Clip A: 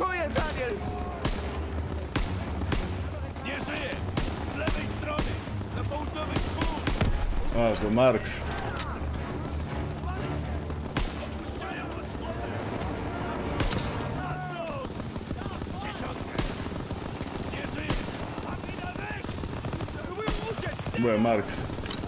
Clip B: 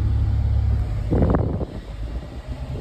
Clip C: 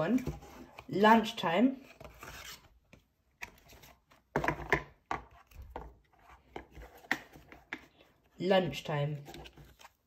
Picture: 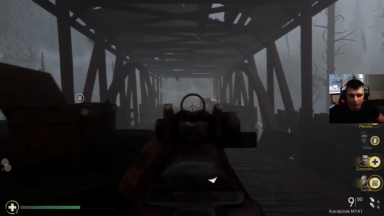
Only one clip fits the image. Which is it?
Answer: A